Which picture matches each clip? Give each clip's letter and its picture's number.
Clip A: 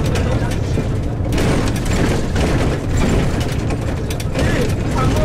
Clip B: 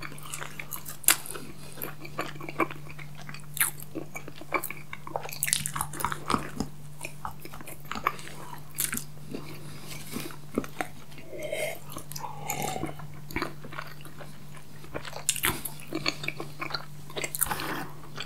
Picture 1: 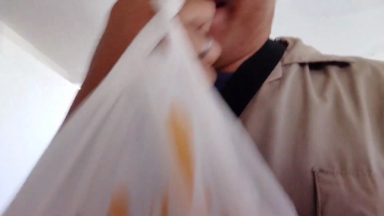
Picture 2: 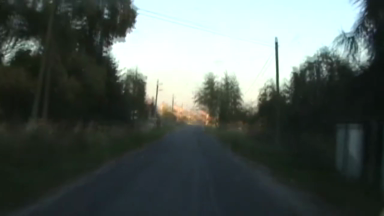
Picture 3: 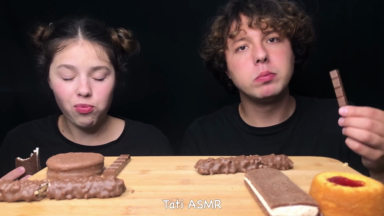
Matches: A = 2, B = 3